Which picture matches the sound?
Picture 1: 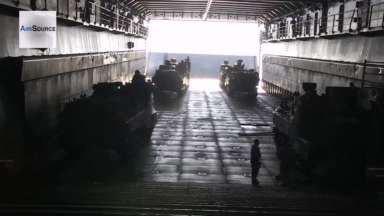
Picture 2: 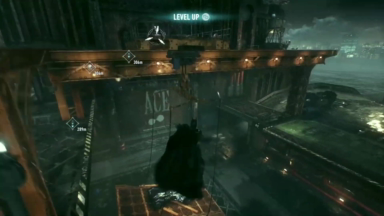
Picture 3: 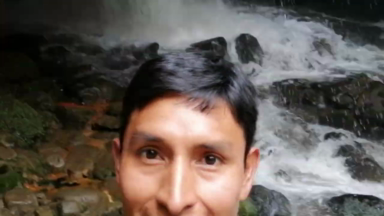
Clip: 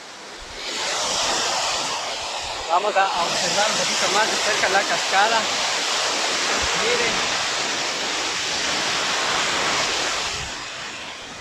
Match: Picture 3